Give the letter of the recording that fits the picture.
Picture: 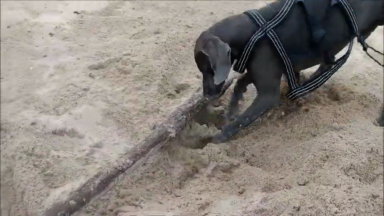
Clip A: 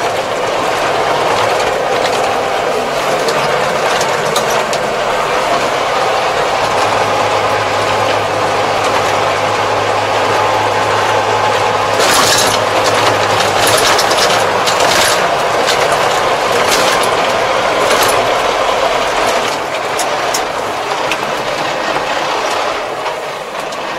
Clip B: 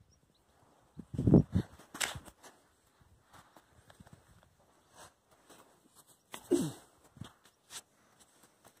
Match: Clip B